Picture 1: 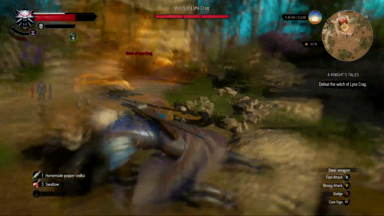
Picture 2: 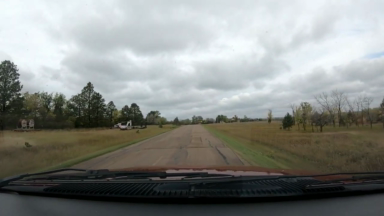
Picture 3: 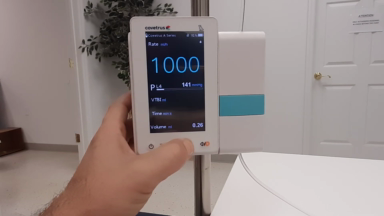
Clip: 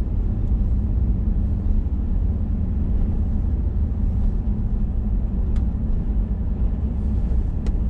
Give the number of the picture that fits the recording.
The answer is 2